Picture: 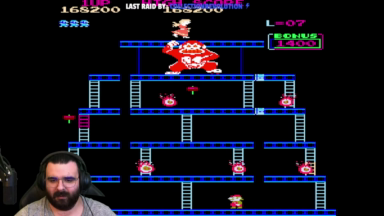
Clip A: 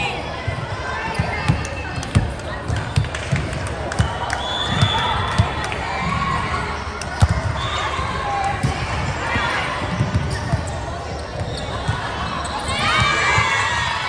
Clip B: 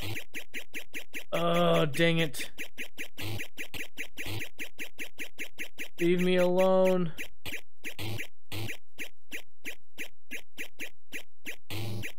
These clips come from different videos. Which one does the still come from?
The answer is B